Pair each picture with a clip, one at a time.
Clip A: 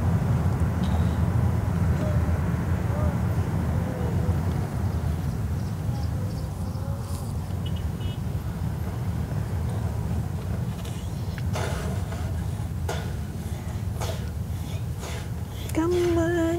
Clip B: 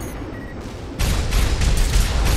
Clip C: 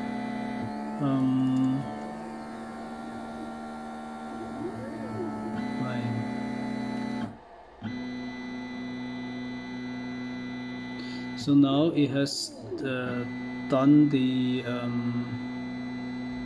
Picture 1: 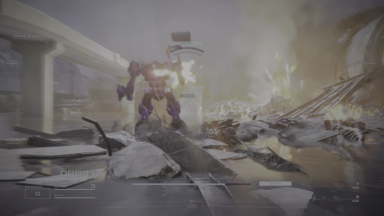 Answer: B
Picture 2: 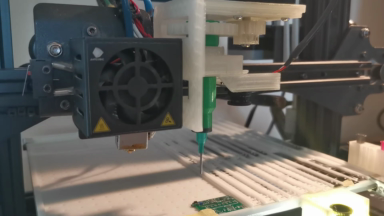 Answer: C